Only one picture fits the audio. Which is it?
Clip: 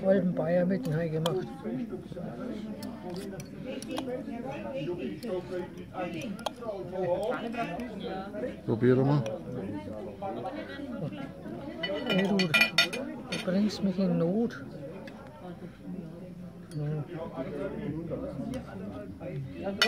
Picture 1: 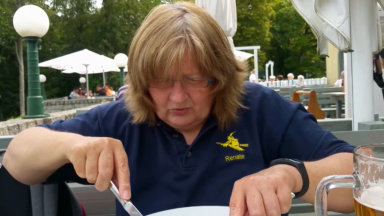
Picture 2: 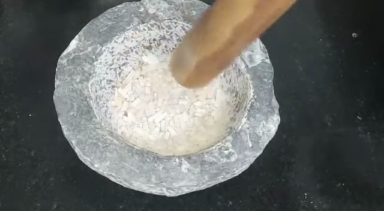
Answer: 1